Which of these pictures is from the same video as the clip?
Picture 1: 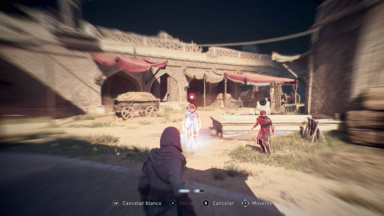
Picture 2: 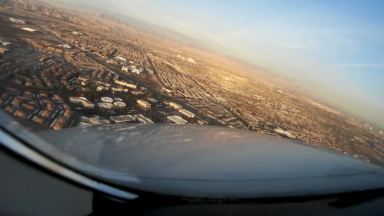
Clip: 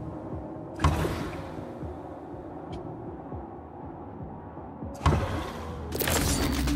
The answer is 1